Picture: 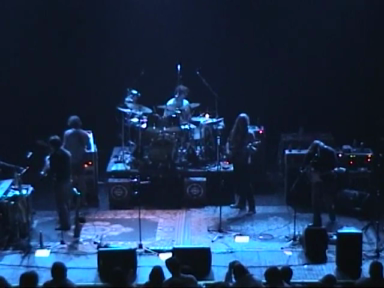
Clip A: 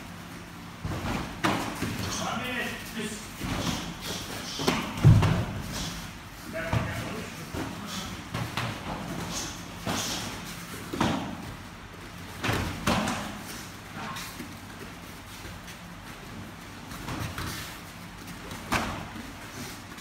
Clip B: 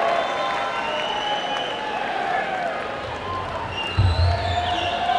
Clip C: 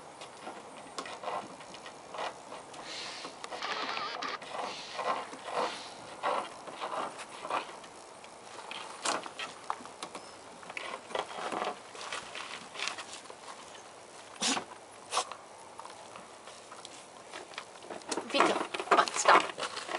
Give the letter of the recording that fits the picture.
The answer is B